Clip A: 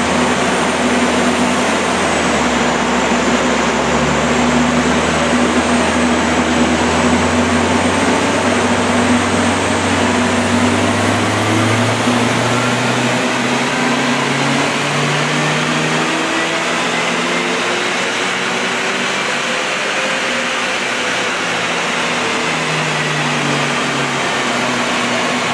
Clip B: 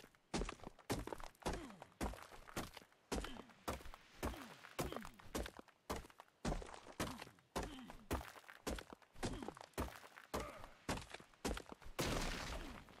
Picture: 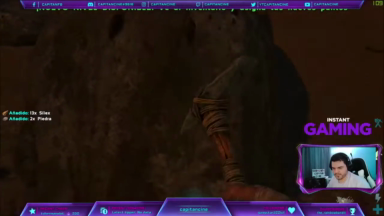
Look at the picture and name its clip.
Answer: B